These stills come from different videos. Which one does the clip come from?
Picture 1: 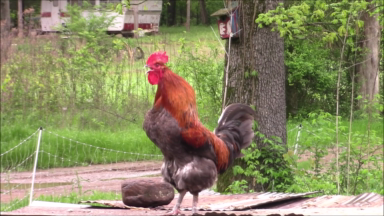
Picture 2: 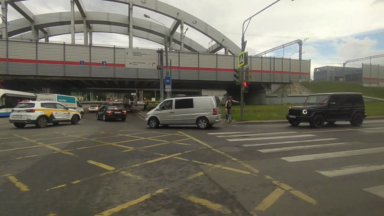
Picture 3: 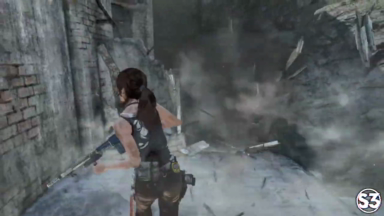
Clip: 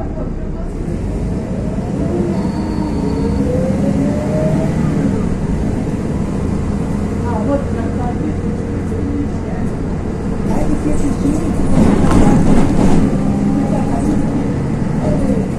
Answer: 2